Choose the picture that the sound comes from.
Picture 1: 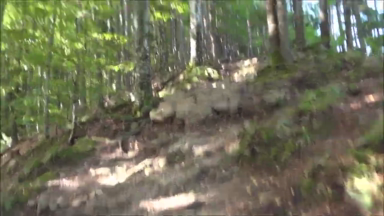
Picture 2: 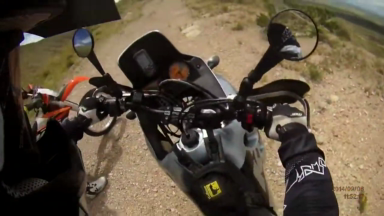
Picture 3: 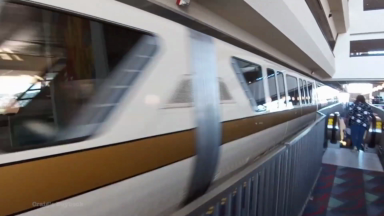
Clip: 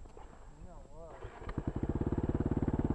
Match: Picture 2